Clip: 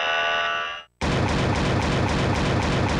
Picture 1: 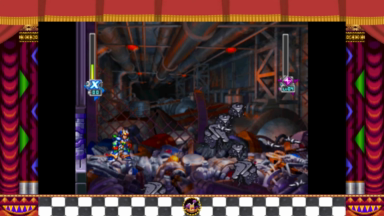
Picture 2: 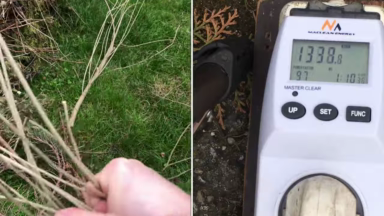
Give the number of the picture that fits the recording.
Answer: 1